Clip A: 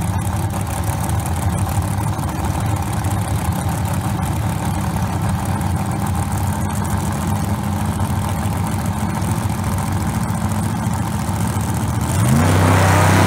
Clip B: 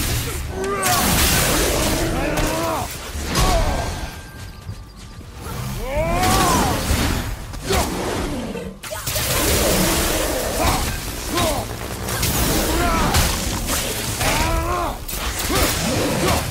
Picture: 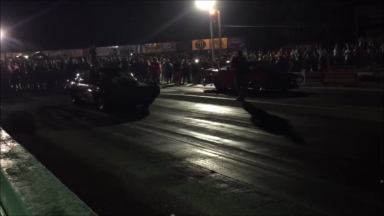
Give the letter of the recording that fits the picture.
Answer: A